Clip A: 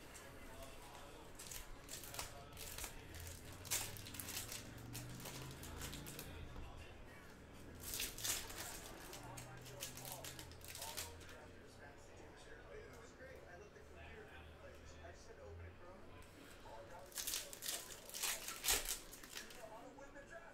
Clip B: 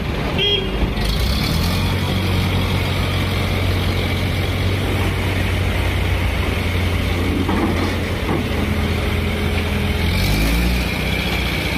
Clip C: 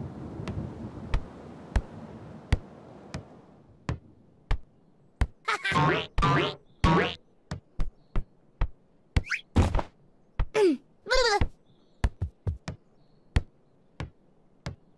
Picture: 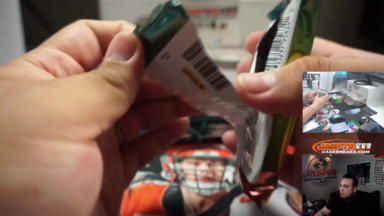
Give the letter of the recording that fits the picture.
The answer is A